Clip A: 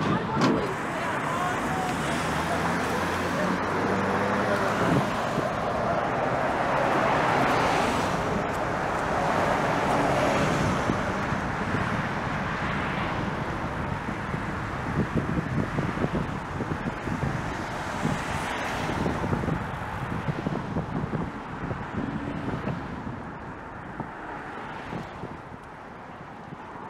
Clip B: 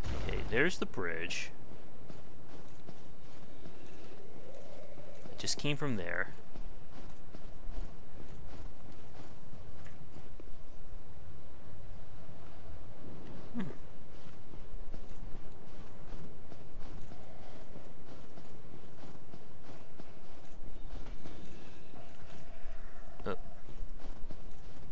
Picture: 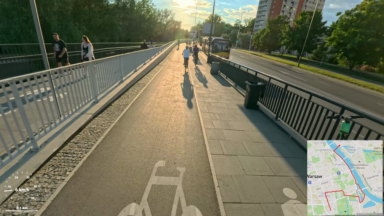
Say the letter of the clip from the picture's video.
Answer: A